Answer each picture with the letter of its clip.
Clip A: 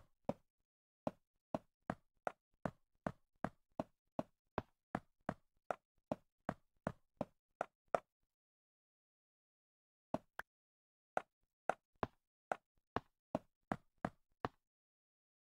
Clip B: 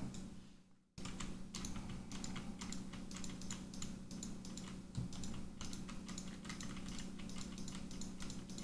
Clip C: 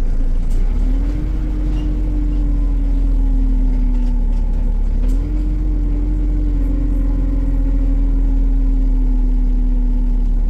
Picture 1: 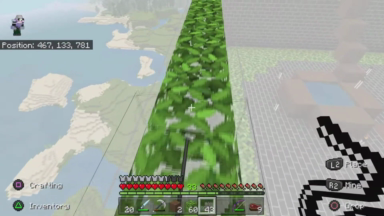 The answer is A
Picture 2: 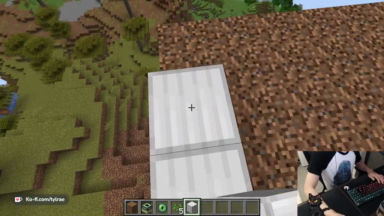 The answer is B